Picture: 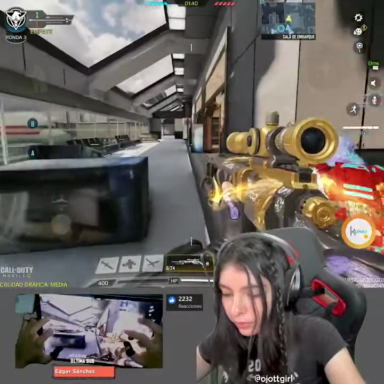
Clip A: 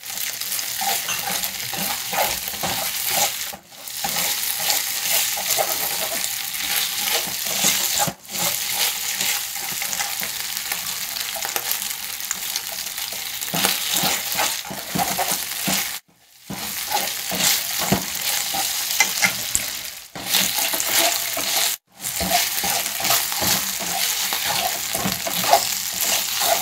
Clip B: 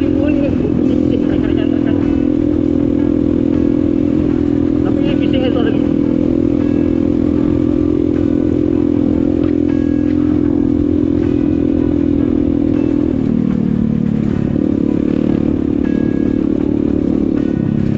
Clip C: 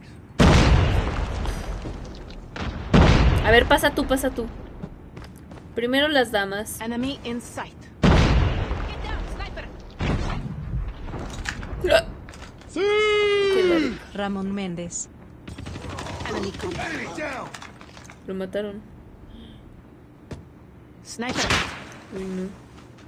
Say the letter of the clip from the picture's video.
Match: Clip C